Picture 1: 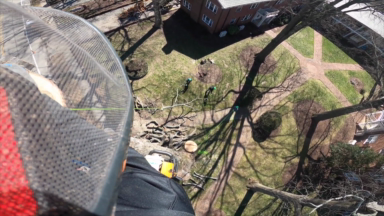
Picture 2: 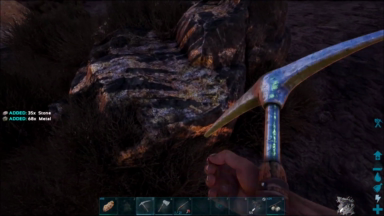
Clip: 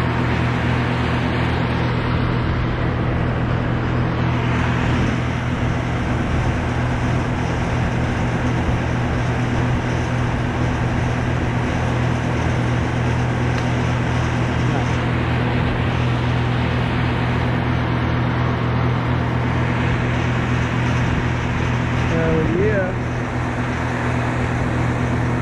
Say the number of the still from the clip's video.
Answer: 1